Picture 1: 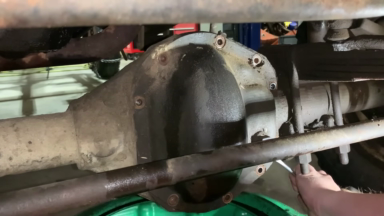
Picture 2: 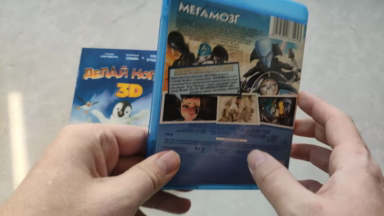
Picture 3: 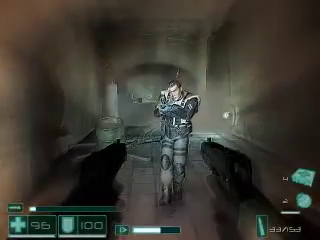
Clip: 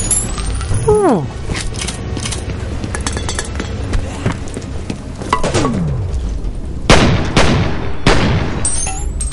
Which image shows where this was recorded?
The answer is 3